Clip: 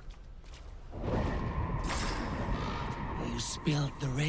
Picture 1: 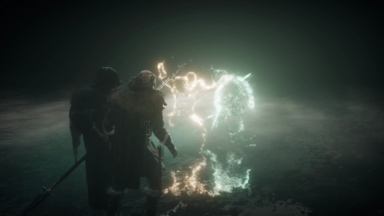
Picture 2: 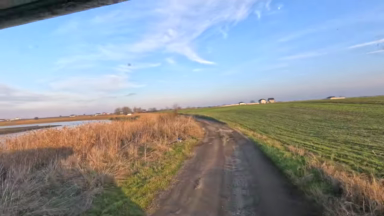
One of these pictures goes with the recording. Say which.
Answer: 1